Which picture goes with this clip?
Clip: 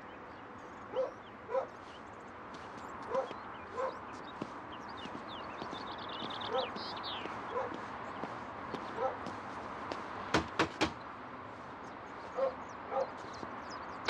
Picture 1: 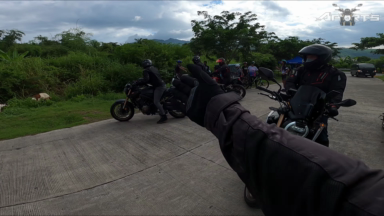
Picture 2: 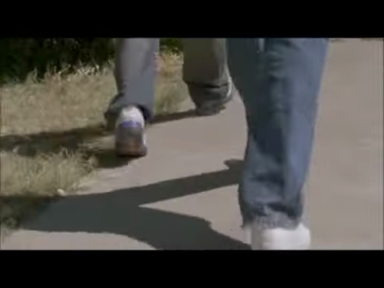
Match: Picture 2